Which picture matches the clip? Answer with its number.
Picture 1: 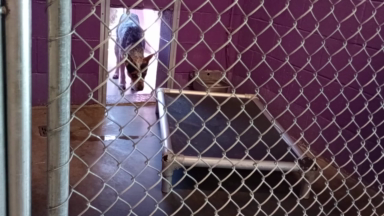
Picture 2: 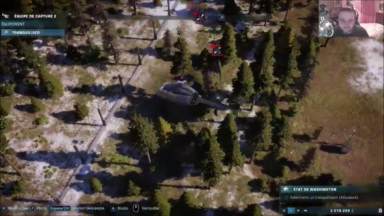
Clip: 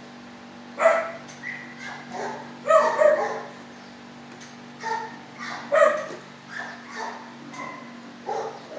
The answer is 1